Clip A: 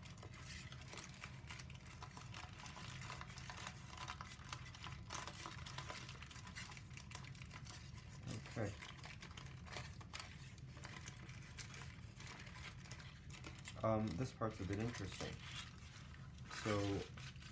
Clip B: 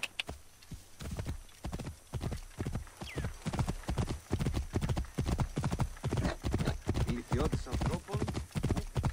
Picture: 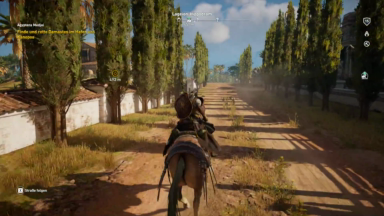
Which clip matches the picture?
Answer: B